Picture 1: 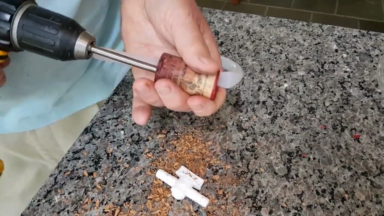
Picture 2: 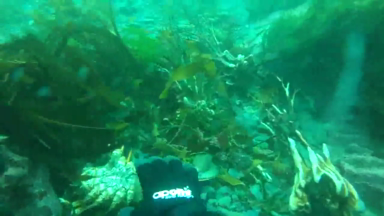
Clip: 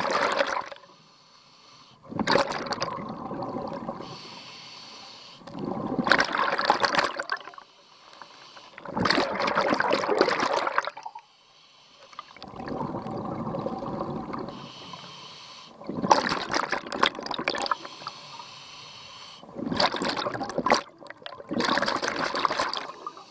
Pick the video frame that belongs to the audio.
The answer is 2